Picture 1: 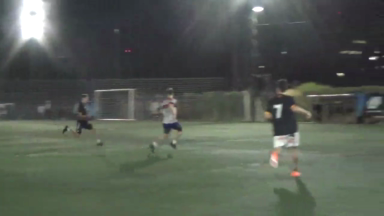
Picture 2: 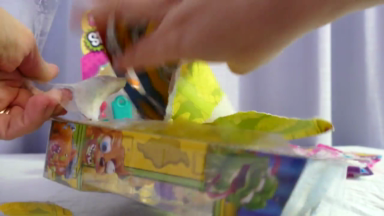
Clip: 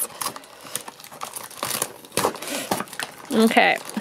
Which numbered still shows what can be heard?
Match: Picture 2